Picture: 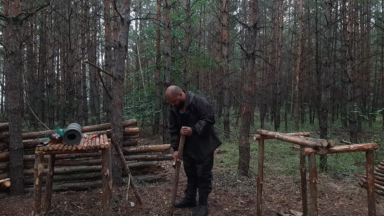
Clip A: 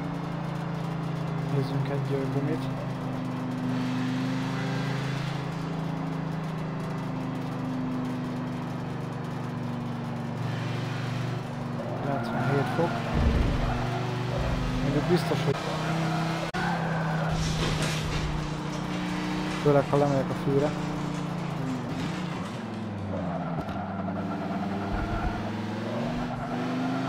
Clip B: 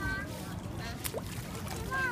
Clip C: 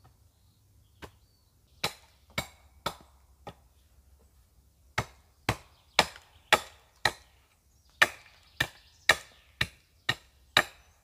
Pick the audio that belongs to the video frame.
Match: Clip C